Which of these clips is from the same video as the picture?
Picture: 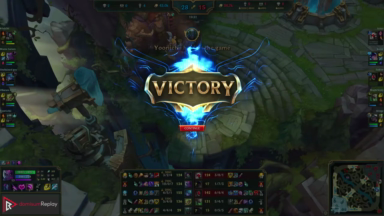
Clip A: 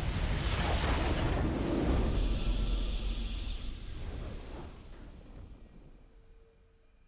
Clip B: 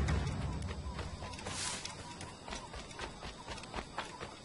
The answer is A